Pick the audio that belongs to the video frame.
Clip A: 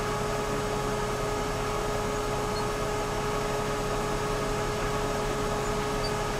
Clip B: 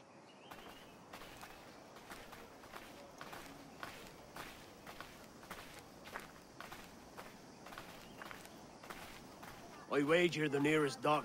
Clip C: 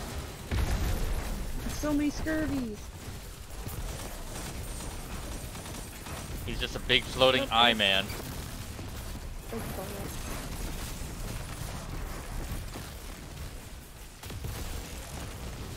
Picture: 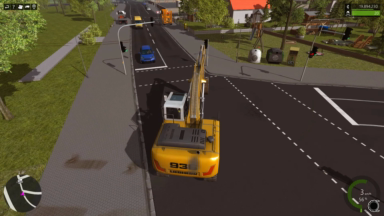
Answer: A